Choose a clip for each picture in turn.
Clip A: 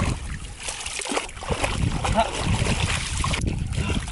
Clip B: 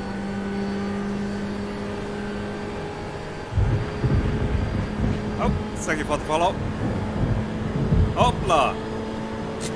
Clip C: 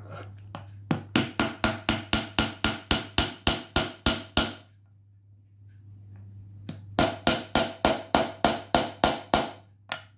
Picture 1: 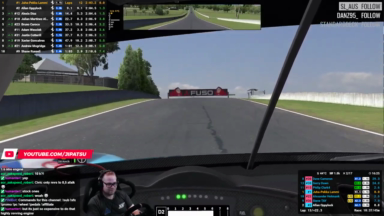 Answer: B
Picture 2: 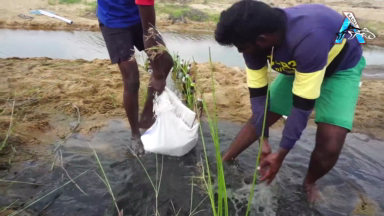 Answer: A